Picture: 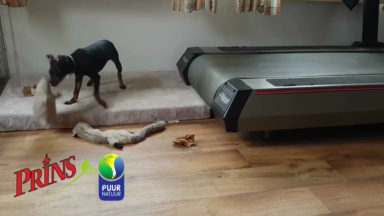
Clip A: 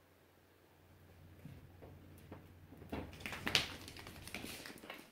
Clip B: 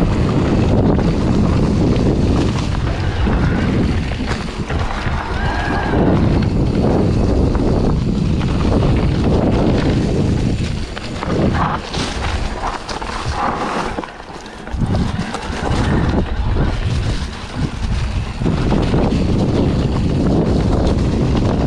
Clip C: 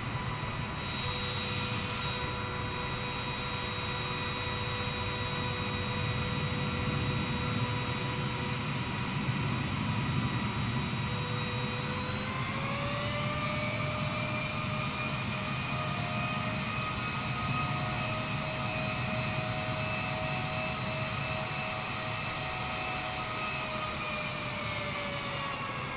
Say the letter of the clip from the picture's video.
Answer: A